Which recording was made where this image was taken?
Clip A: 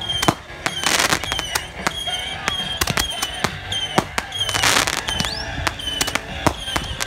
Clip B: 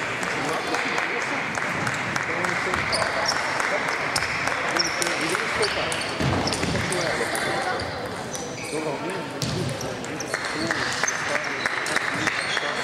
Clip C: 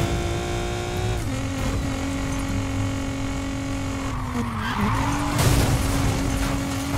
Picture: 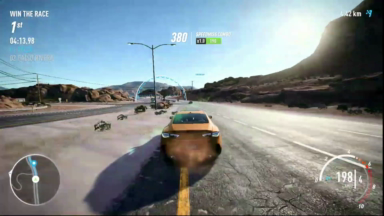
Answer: C